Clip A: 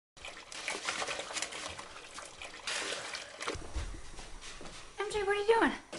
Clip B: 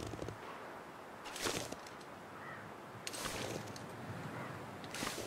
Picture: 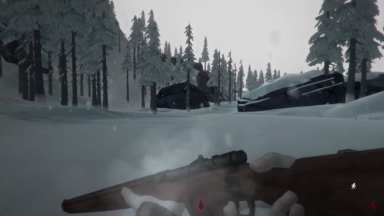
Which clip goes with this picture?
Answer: B